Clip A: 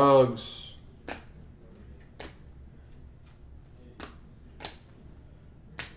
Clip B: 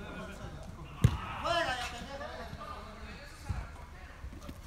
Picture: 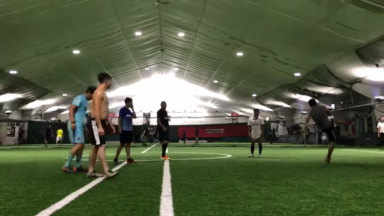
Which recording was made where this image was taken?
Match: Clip B